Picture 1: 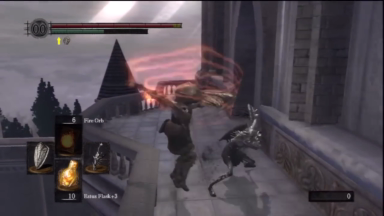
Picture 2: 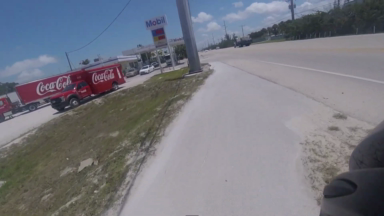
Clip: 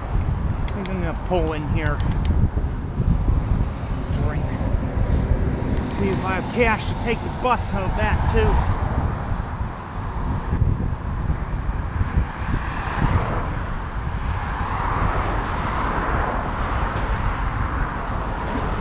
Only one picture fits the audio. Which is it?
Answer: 2